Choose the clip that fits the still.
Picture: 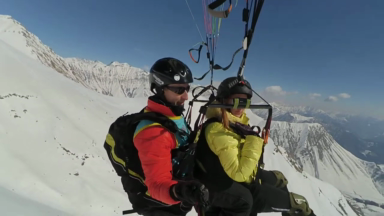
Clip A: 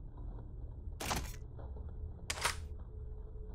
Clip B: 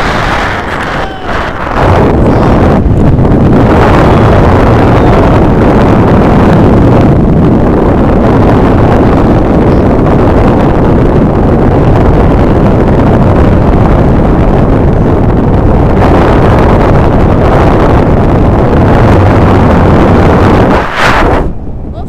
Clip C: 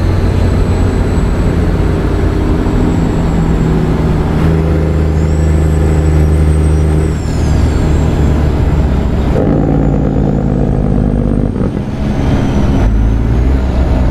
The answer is B